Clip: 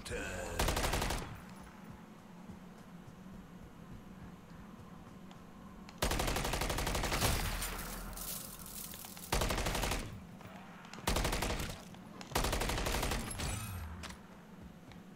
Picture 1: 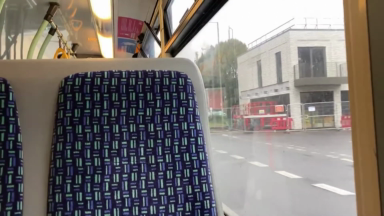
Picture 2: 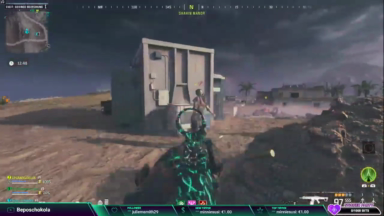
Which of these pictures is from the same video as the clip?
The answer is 2